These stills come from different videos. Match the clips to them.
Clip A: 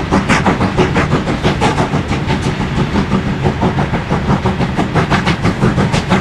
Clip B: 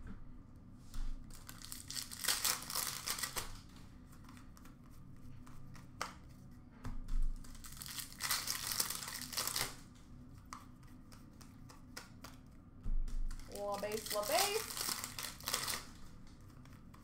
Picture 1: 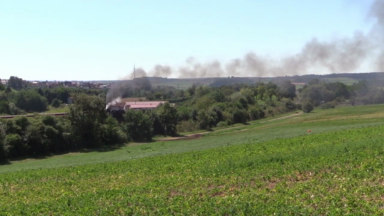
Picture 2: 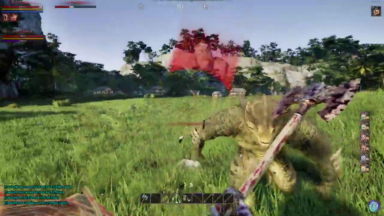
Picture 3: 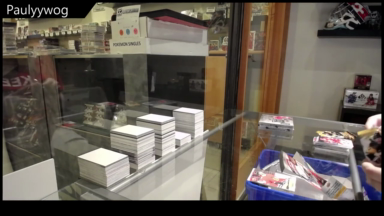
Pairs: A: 1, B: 3